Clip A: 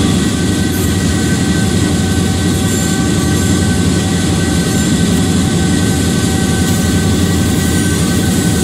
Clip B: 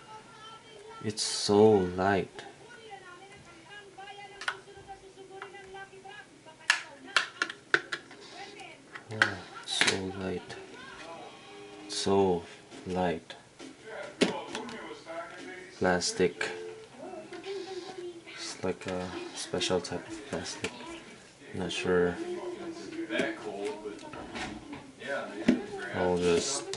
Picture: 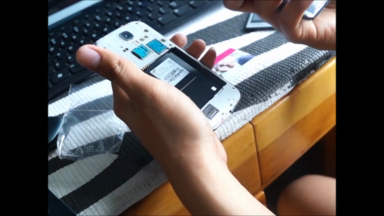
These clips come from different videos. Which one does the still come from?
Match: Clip B